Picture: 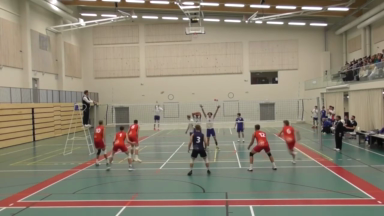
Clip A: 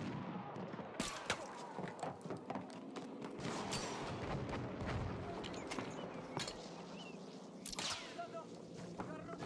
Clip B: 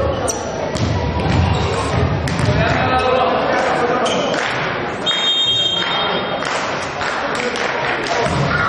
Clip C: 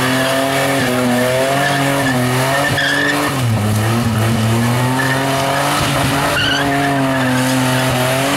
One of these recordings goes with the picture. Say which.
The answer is B